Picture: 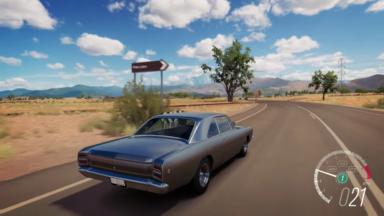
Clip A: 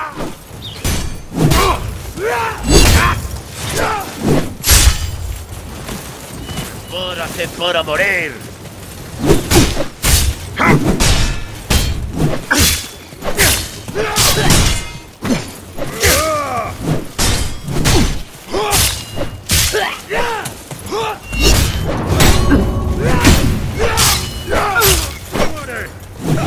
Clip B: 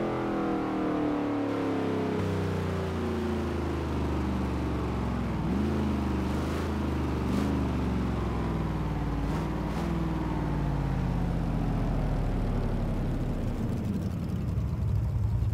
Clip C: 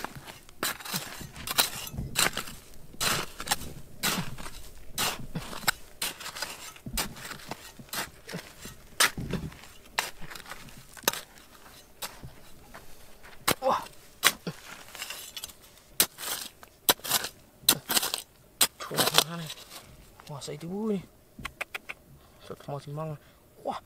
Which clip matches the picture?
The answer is B